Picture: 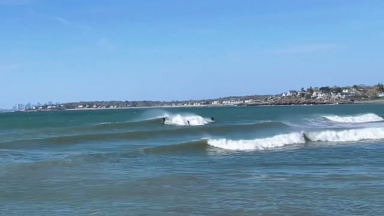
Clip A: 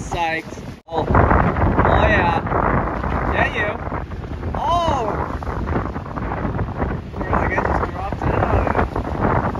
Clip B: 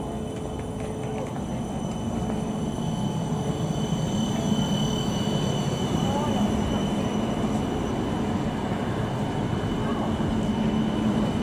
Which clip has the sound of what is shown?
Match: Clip A